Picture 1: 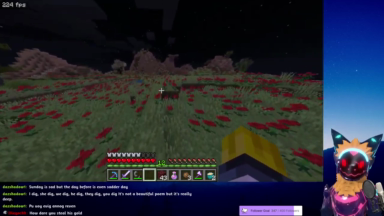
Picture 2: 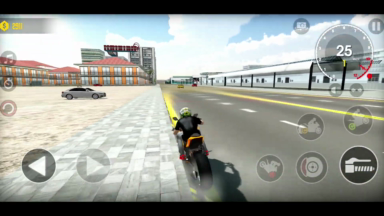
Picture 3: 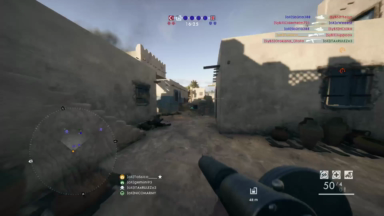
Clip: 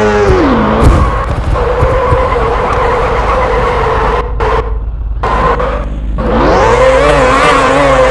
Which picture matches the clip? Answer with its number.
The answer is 2